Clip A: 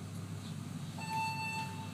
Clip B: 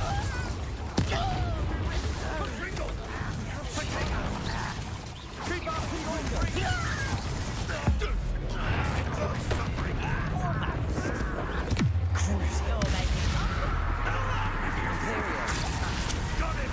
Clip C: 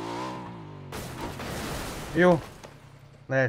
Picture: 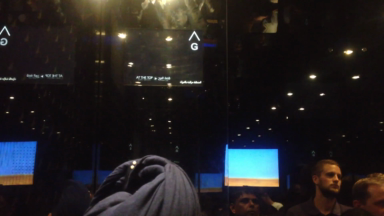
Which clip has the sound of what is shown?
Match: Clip A